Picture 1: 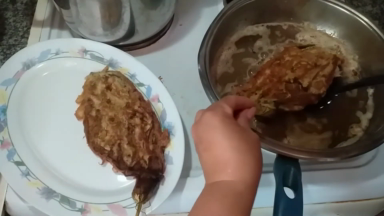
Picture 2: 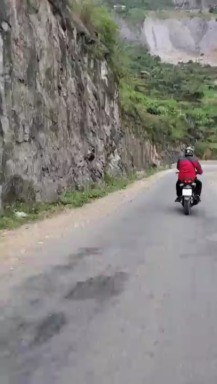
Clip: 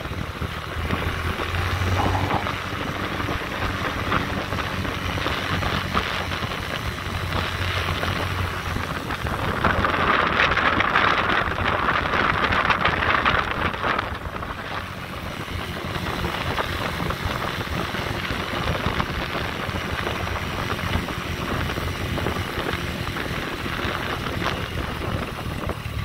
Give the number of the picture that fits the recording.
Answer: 2